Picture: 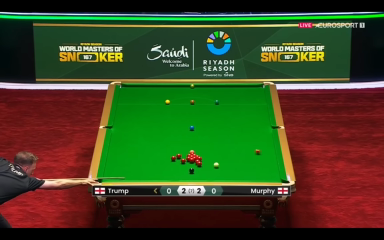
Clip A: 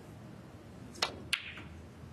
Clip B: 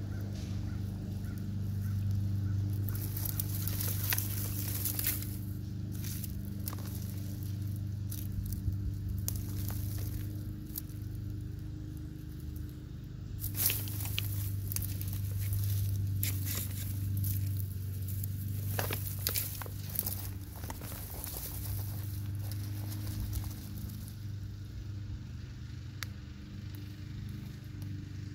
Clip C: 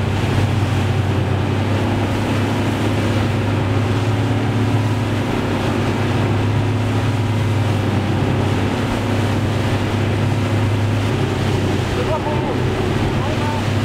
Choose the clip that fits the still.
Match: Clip A